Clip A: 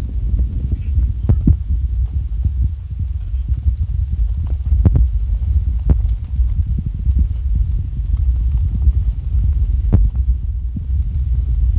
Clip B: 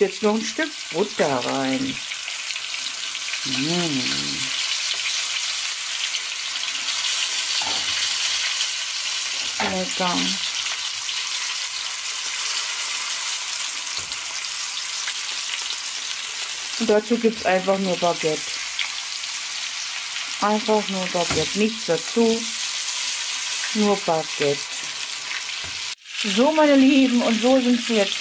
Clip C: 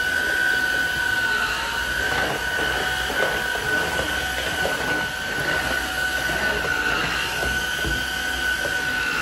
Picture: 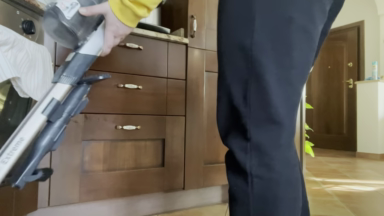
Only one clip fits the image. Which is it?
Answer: C